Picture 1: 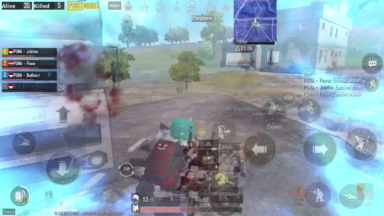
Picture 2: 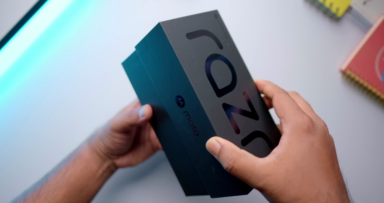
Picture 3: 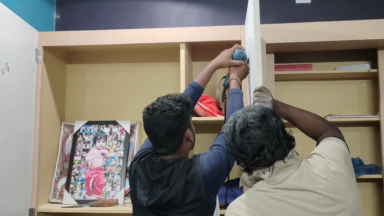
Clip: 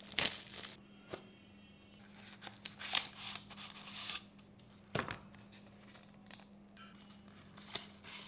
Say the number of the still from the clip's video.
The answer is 2